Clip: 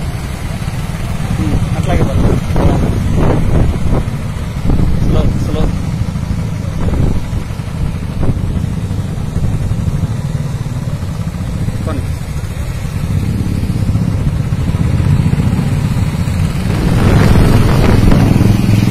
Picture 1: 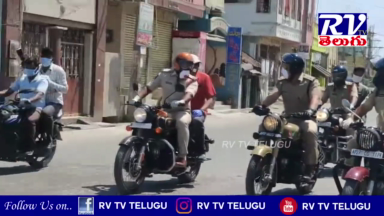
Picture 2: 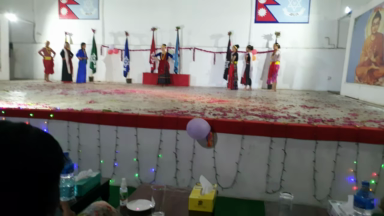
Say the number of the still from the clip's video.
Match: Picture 1